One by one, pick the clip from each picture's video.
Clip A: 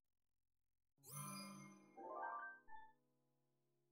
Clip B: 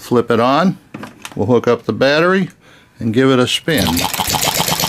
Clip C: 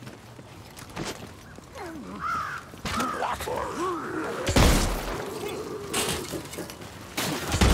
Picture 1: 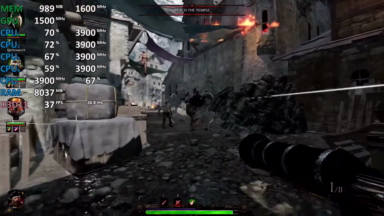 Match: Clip C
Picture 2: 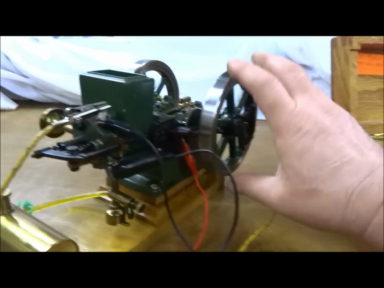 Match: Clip B